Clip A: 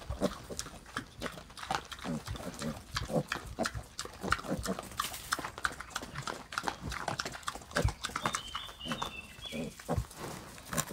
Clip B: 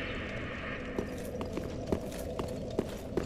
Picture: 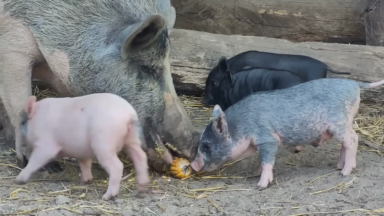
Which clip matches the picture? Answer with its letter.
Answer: A